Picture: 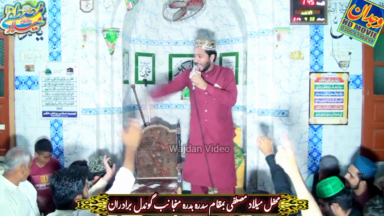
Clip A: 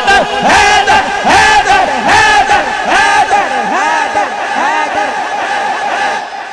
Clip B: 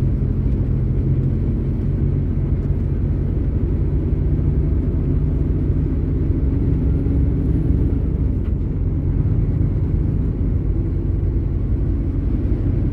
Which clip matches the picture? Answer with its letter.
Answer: A